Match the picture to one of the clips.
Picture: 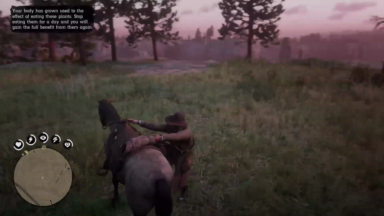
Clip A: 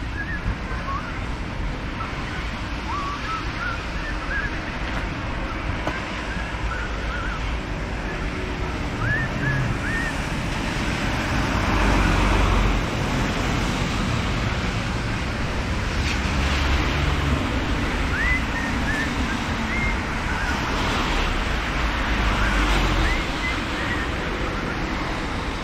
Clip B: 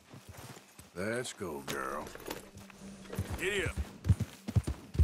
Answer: B